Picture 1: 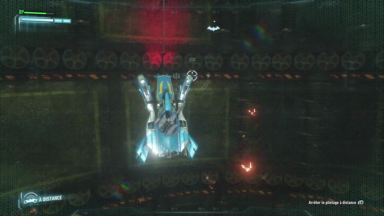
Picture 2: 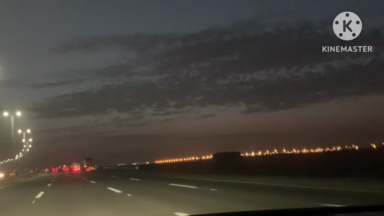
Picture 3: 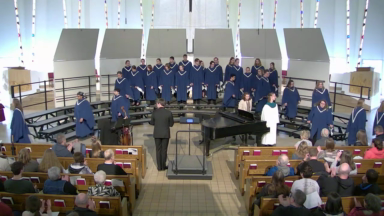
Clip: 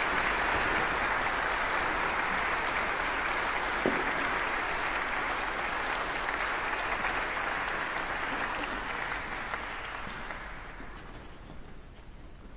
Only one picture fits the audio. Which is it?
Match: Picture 3